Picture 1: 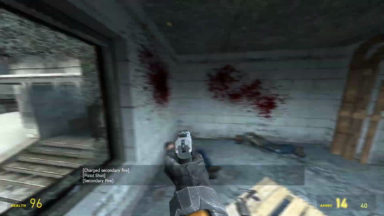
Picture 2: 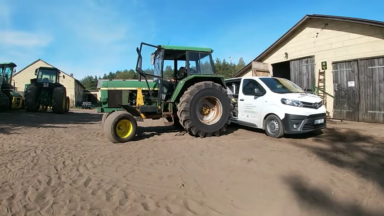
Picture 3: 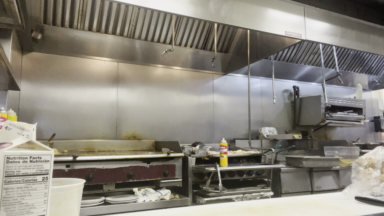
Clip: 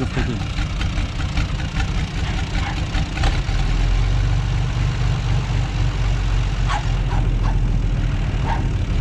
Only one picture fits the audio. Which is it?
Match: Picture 2